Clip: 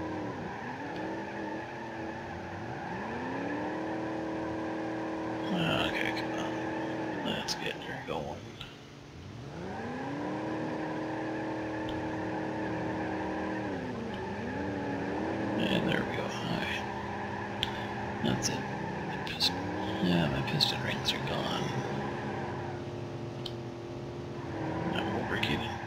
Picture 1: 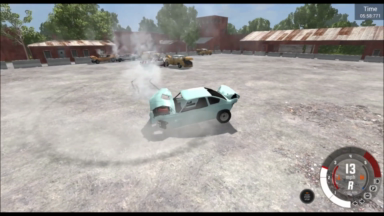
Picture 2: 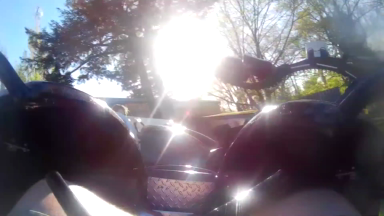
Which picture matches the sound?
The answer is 1